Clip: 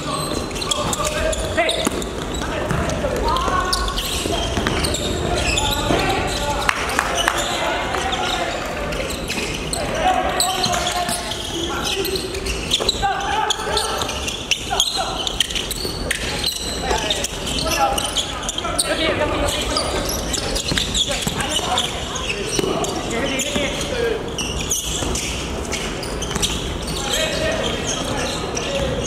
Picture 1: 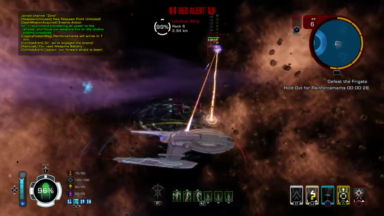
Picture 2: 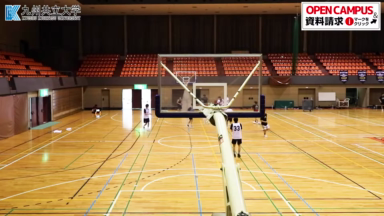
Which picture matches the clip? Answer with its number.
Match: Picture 2